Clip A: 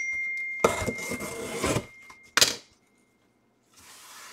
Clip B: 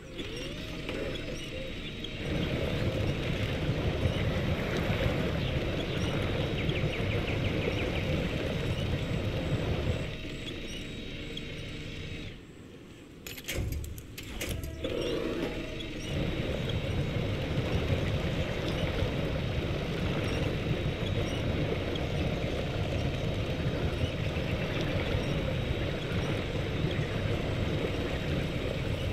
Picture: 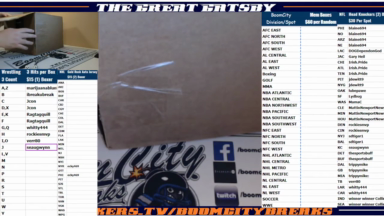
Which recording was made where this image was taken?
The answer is A